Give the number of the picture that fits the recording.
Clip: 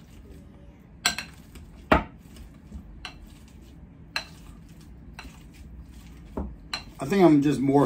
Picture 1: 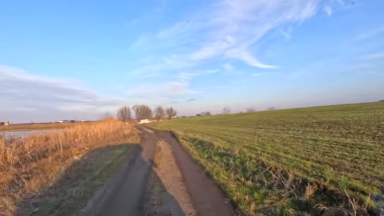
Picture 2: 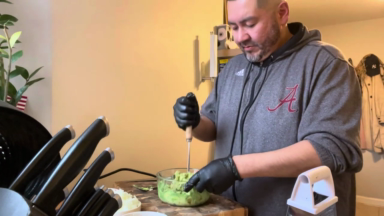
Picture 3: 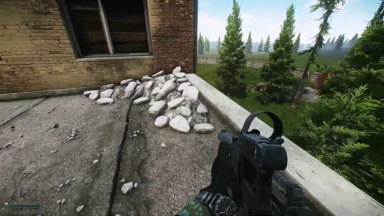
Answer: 2